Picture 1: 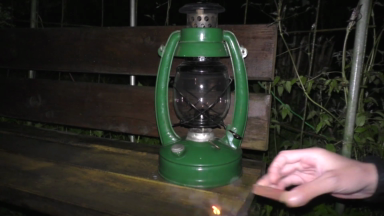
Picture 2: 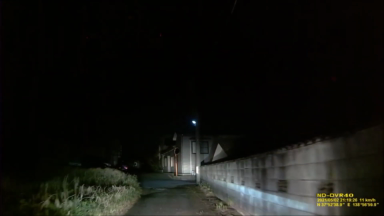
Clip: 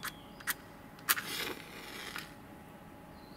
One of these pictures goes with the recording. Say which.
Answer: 1